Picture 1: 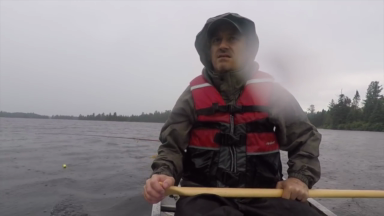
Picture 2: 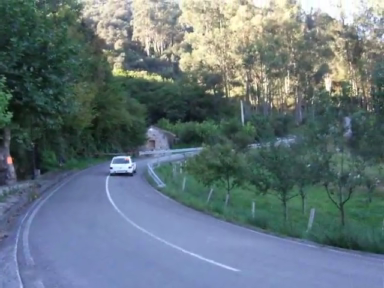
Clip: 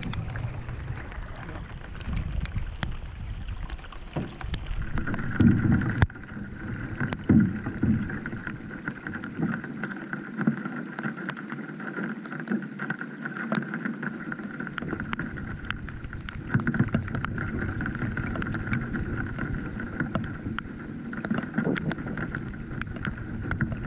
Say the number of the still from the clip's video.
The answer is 1